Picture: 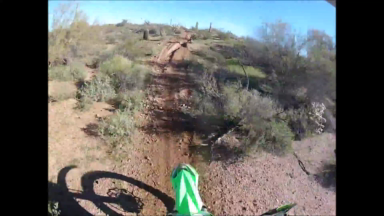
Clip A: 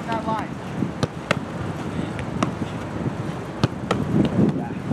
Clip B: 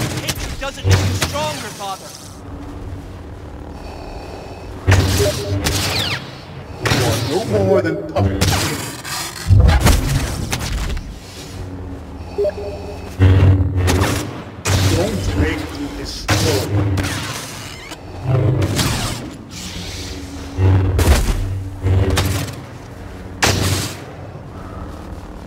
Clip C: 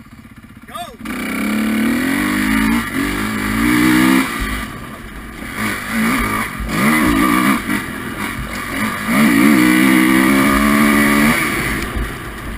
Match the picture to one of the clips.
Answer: C